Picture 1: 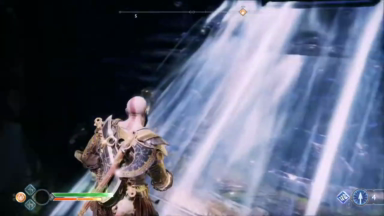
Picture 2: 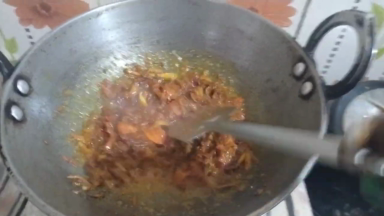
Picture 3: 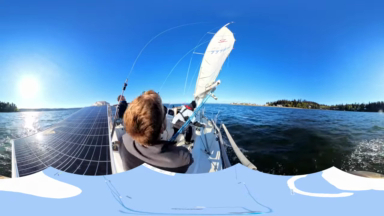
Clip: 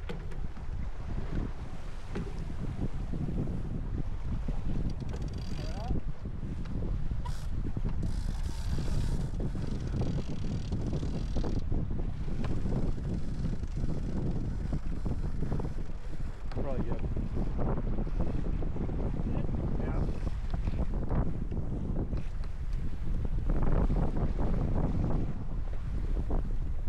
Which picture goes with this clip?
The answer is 3